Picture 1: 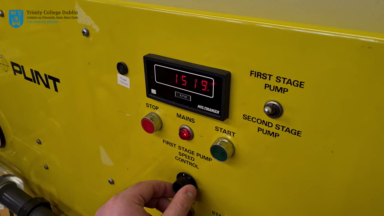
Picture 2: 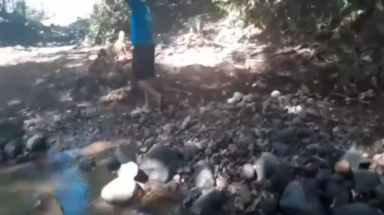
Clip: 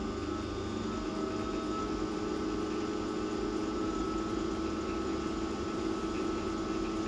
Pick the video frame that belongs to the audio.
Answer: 1